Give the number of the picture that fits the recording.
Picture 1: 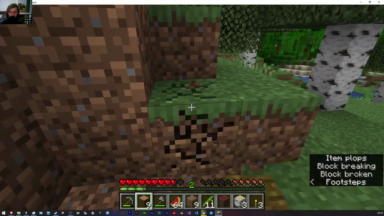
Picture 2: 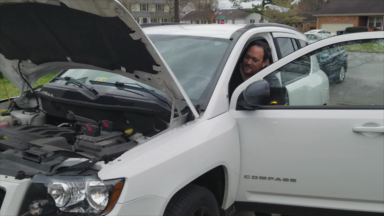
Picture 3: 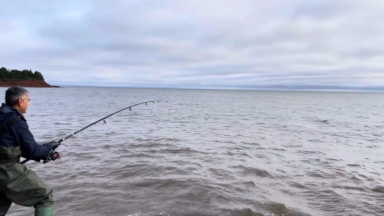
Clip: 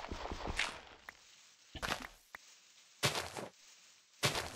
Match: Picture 1